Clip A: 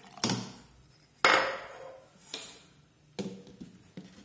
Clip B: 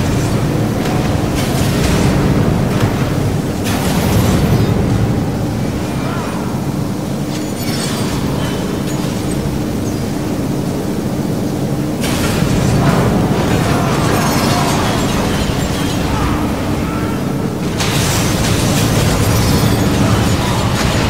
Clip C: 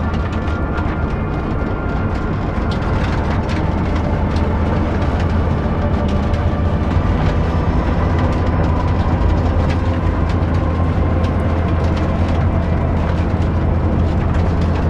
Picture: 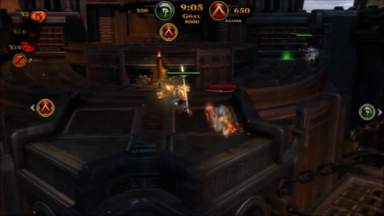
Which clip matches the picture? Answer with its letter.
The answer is B